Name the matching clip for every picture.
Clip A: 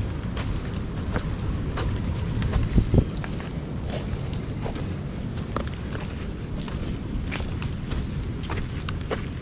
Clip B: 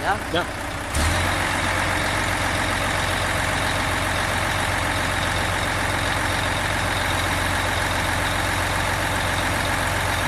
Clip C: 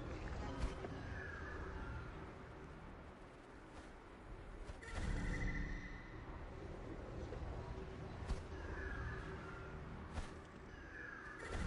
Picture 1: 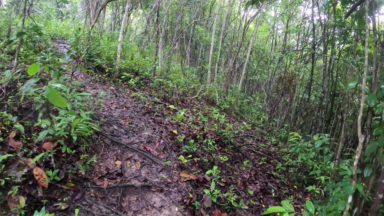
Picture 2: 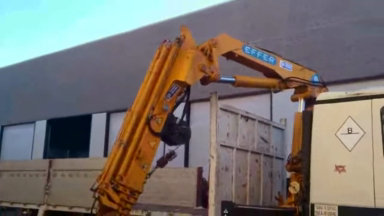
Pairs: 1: A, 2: B